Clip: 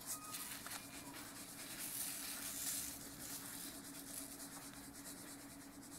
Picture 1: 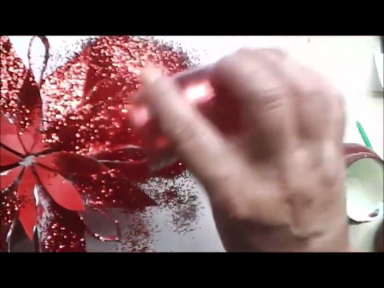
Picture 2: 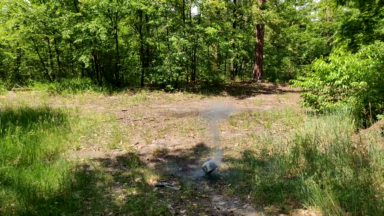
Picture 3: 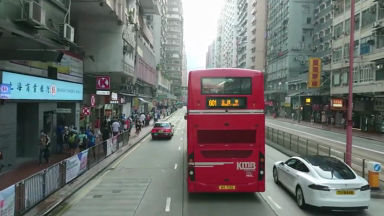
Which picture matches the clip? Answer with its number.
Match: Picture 1